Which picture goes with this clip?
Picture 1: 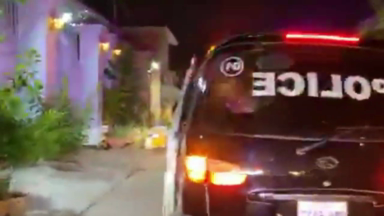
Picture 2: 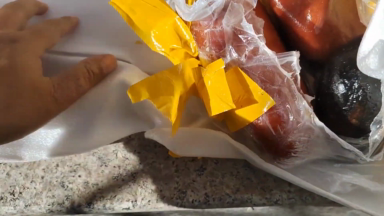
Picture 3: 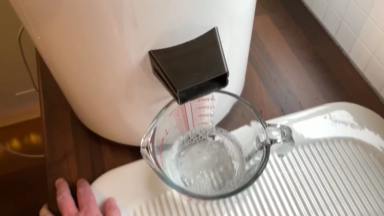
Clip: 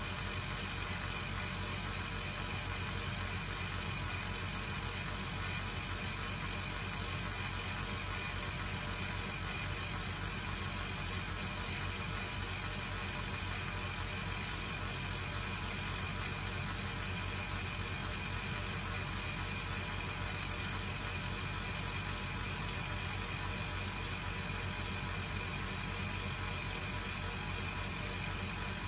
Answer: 3